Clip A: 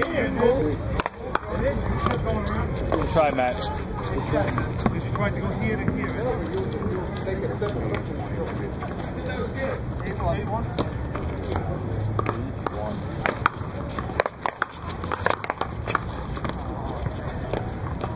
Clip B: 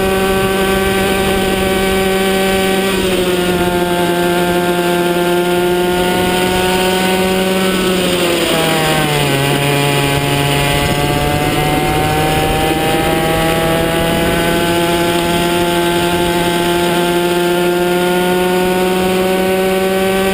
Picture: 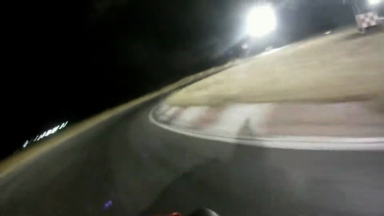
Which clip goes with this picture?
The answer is B